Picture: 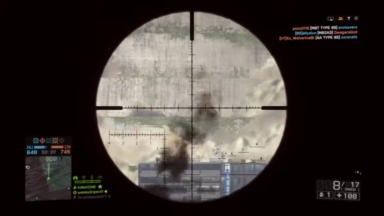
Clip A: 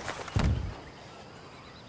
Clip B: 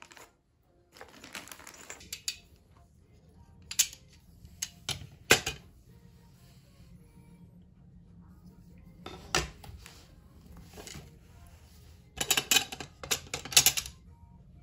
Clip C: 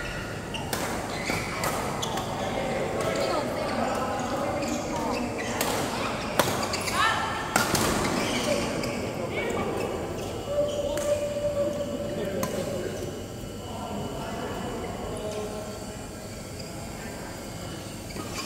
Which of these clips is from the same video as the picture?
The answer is A